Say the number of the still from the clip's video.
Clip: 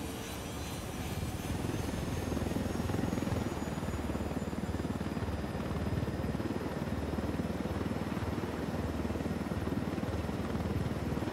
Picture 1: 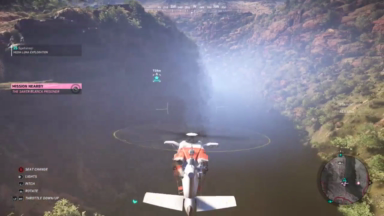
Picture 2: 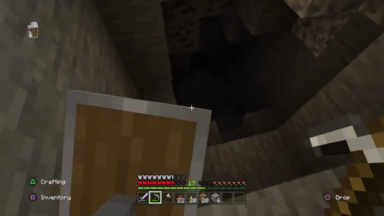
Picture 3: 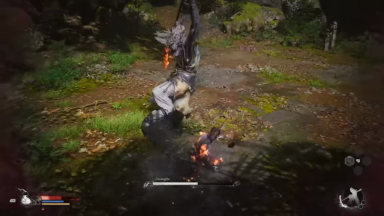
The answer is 1